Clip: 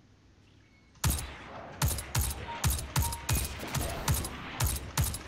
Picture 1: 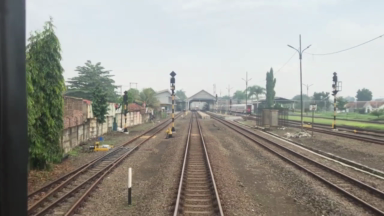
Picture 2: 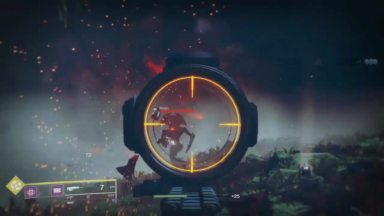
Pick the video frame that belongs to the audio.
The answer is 2